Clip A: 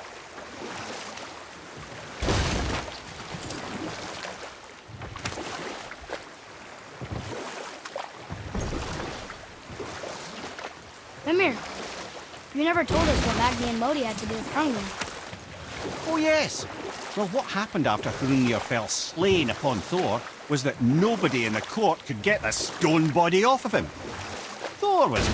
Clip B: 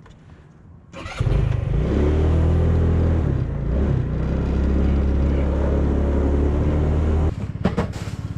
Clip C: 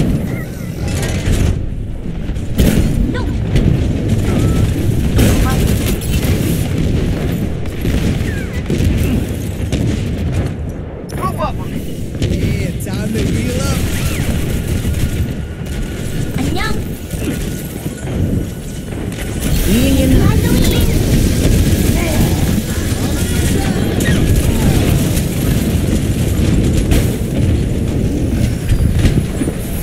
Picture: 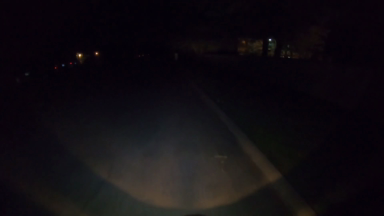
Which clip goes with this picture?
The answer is B